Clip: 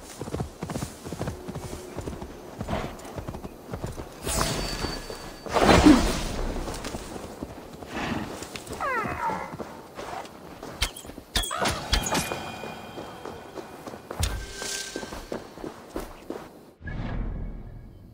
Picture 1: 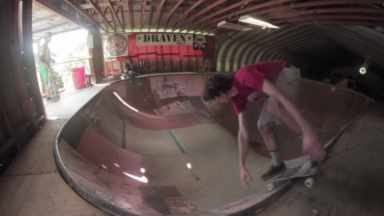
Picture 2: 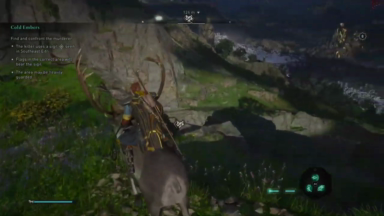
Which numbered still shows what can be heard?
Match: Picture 2